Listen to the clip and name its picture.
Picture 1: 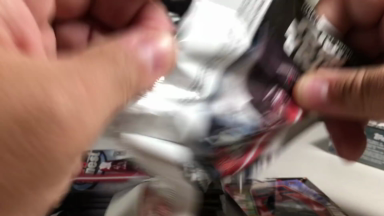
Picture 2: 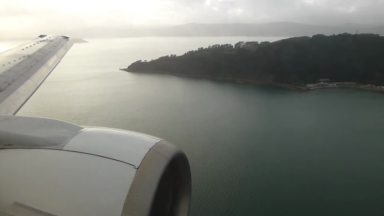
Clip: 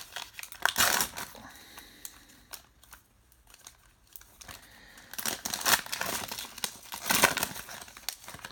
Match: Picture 1